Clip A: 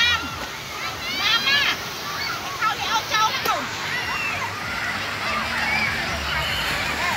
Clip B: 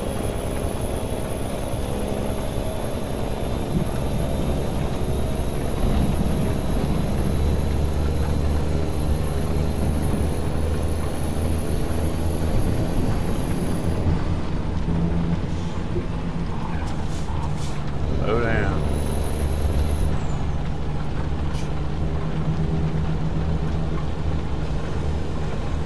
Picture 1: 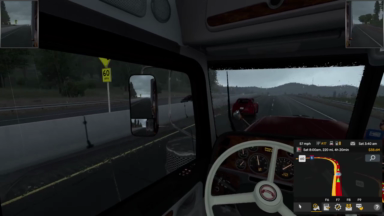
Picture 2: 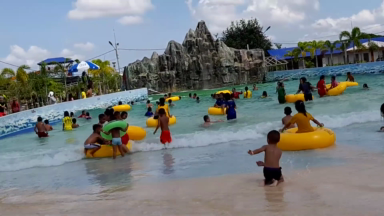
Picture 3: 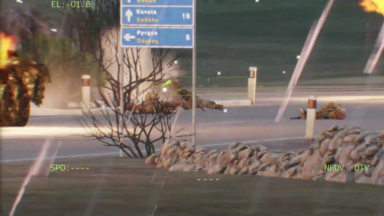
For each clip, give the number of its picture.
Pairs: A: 2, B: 1